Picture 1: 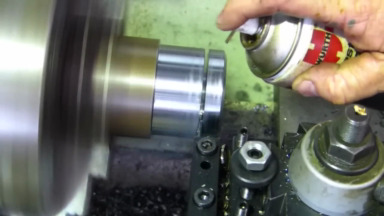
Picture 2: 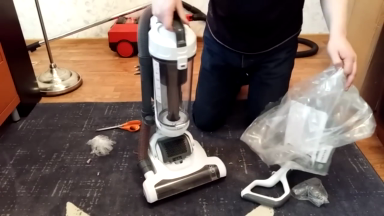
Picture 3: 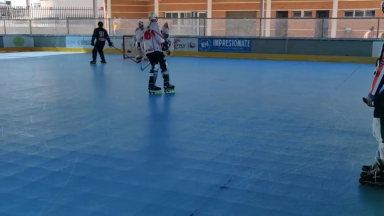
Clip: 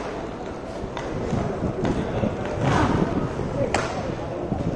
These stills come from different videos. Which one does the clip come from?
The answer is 3